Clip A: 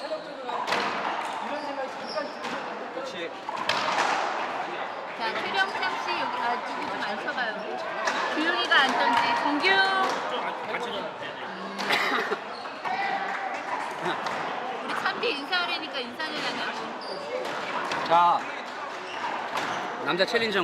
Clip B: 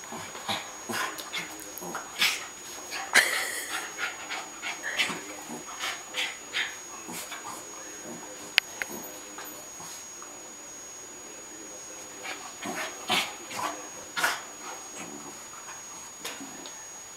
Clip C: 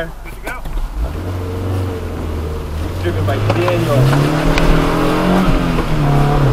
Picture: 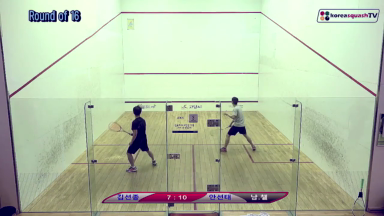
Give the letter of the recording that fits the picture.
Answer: A